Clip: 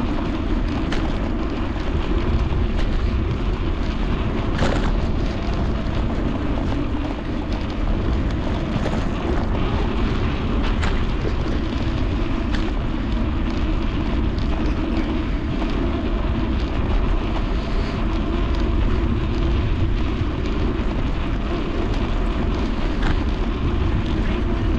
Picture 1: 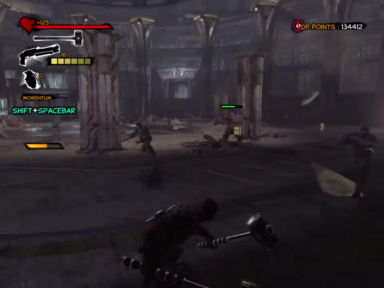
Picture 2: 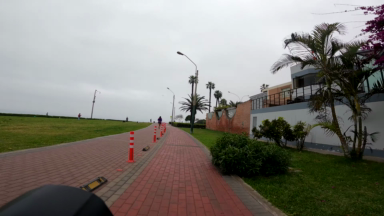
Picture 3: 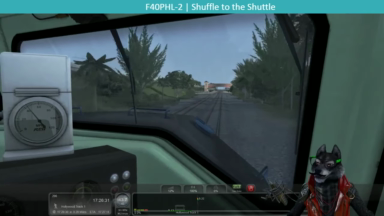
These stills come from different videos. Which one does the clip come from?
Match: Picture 2